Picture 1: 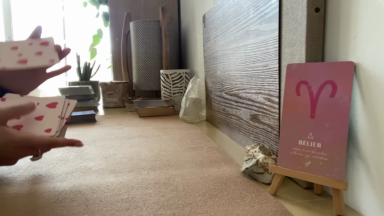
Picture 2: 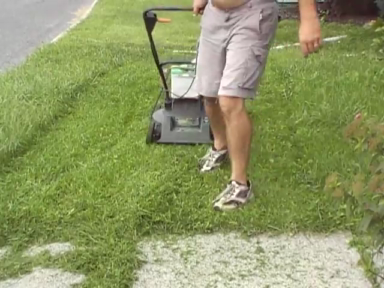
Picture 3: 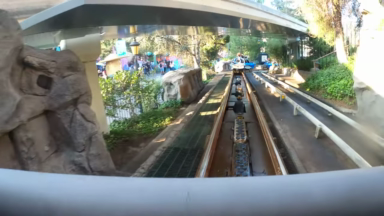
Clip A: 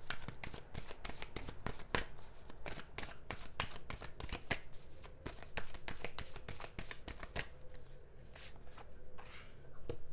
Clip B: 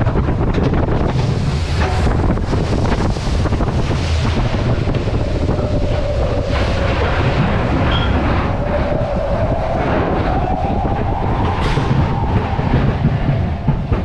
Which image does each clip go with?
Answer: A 1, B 3